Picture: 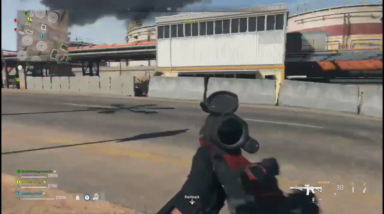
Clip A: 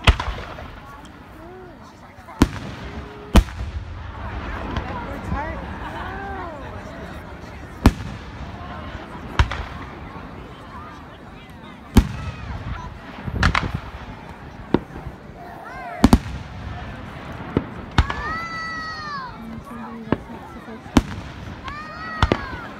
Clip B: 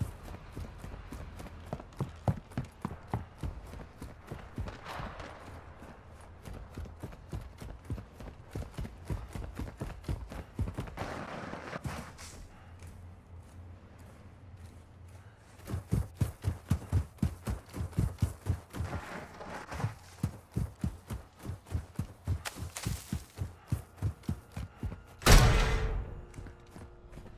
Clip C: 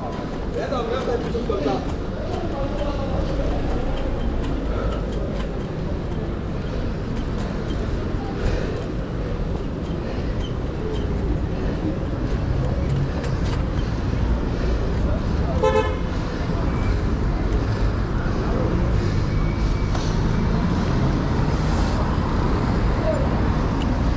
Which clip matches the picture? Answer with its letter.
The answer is B